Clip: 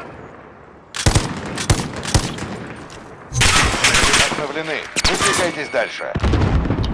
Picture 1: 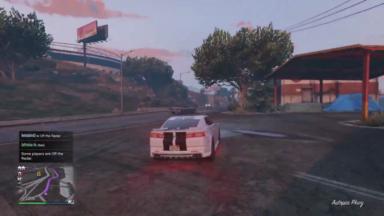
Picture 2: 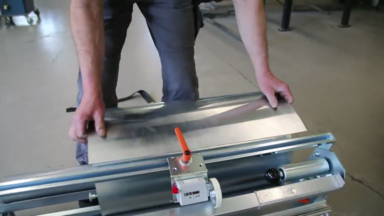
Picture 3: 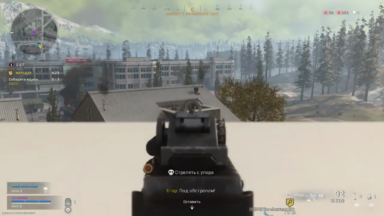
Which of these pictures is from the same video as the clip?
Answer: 3